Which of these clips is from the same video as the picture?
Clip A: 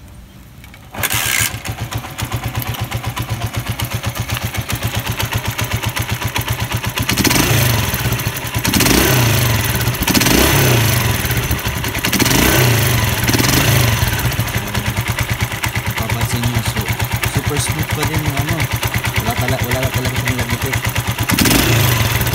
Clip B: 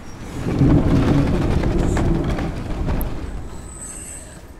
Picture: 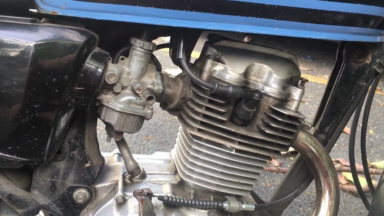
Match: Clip A